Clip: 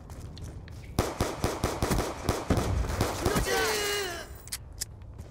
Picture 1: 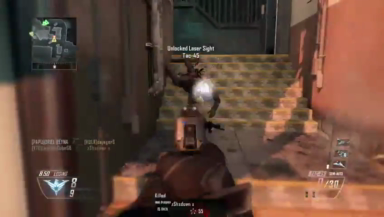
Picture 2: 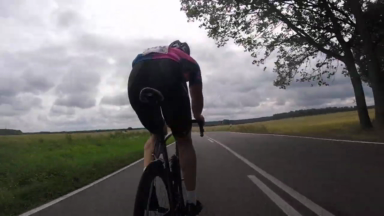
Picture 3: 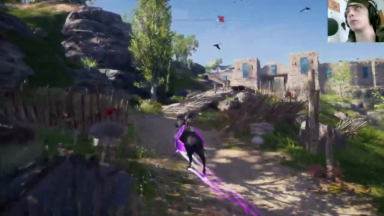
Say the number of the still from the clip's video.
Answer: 1